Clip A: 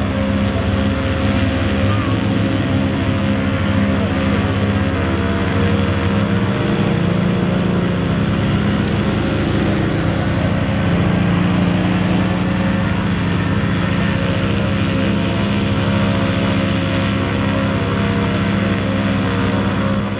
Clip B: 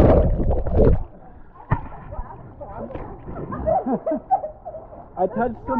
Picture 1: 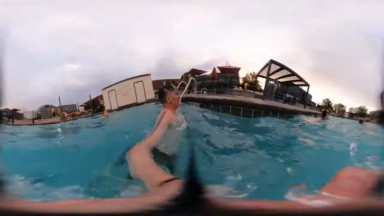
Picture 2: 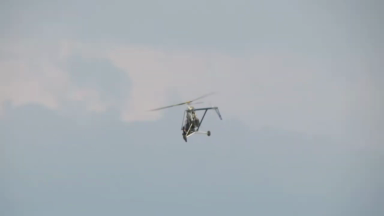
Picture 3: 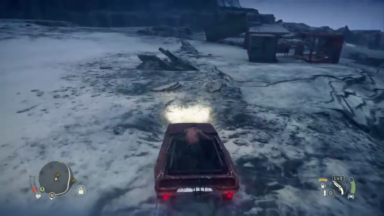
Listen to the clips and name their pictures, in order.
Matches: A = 2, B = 1